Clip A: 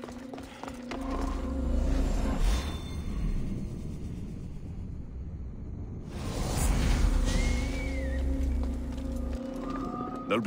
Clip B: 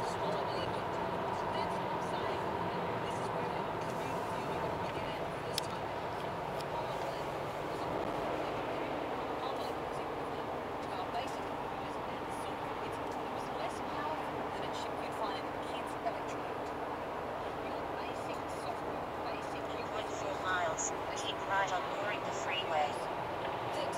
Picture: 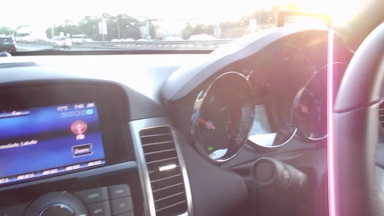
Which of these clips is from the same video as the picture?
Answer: B